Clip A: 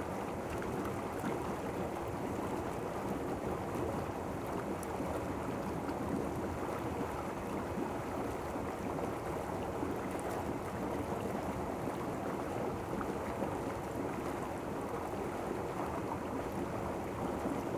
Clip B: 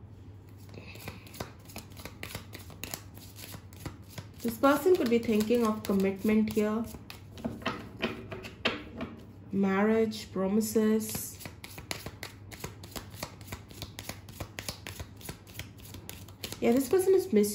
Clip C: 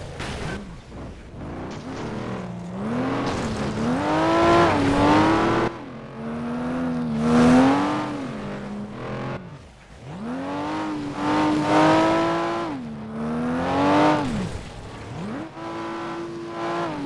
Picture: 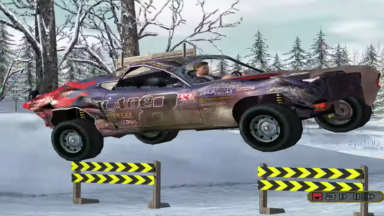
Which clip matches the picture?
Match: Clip C